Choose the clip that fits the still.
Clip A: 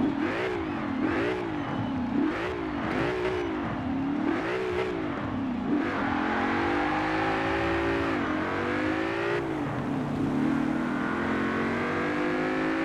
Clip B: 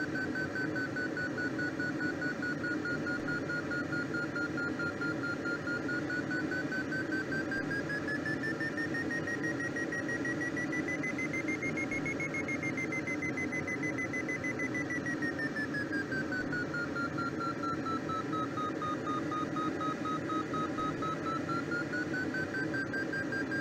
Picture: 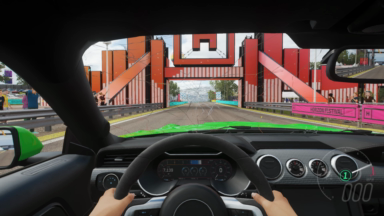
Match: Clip A